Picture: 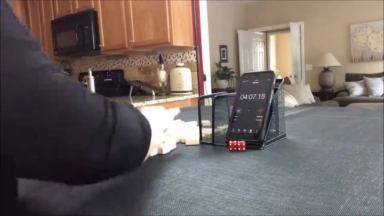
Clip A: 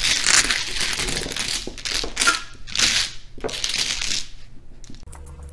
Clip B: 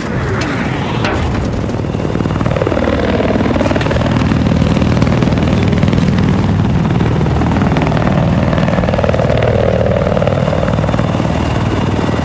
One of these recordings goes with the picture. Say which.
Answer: A